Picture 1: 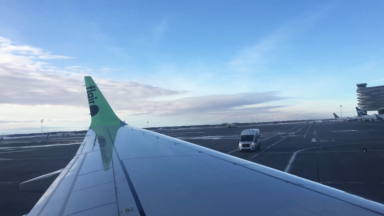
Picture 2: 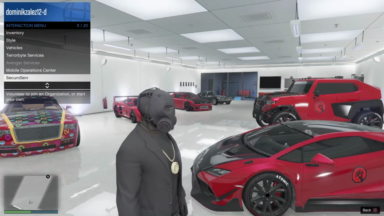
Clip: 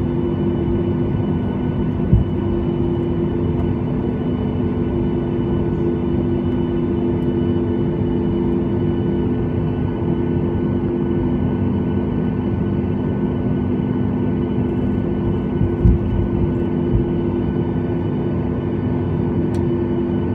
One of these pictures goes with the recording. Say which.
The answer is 1